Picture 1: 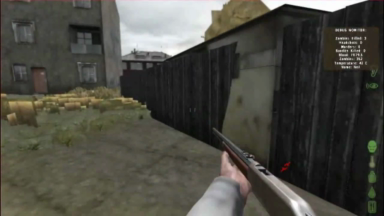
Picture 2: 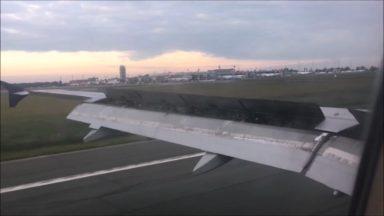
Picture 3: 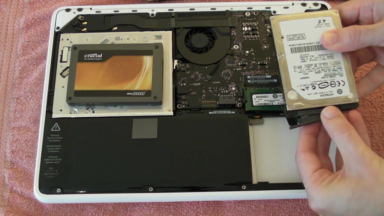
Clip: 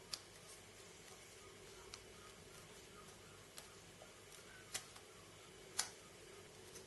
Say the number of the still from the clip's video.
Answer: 3